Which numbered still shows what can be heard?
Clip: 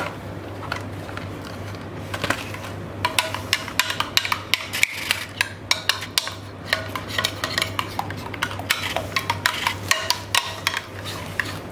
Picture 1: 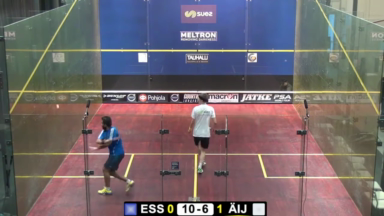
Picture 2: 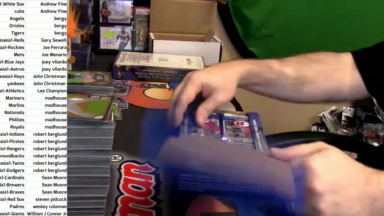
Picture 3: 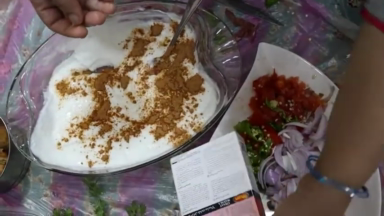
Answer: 3